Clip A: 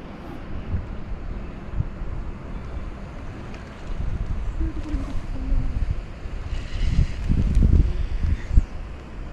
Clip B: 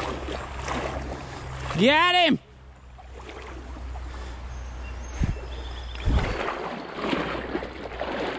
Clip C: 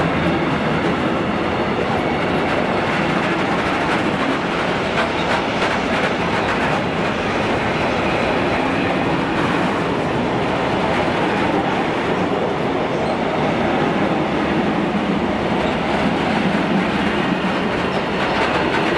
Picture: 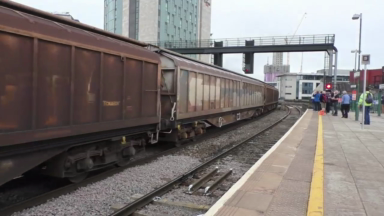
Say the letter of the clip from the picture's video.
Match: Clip C